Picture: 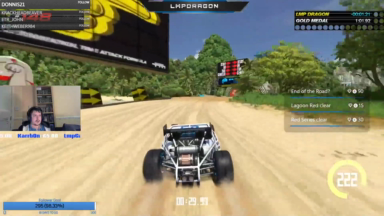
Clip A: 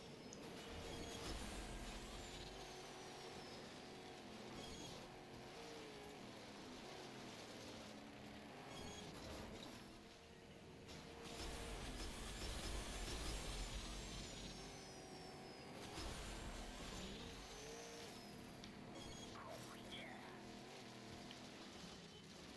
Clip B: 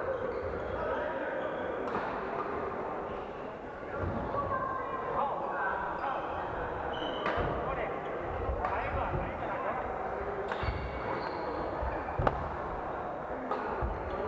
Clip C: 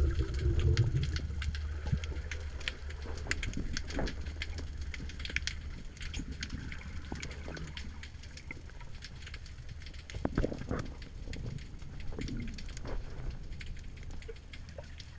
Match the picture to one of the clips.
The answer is A